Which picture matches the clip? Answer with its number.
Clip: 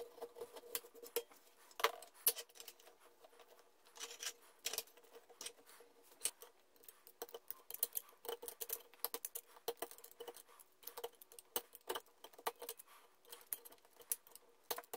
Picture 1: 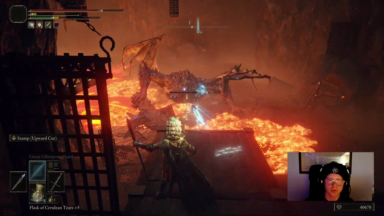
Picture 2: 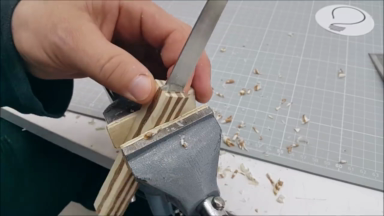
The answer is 2